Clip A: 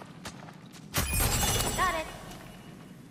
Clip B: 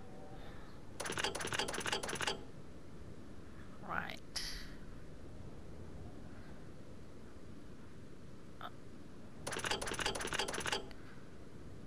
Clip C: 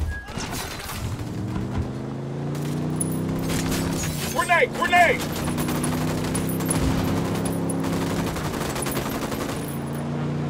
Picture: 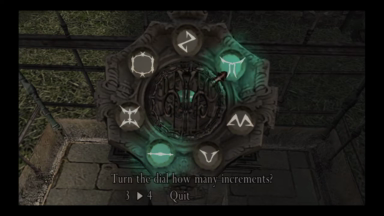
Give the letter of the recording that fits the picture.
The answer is B